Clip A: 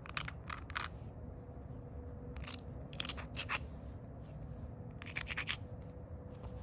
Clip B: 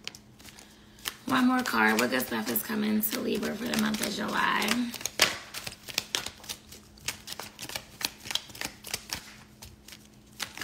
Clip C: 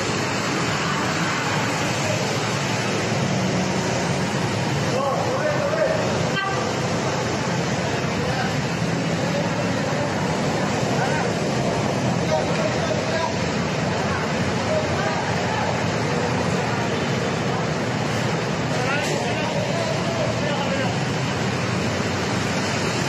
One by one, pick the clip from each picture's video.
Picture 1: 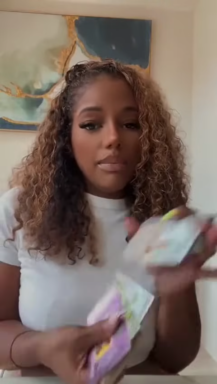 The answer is B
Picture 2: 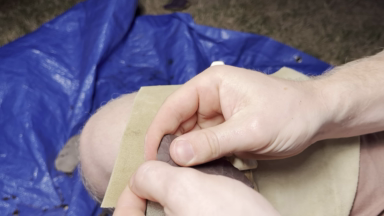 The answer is A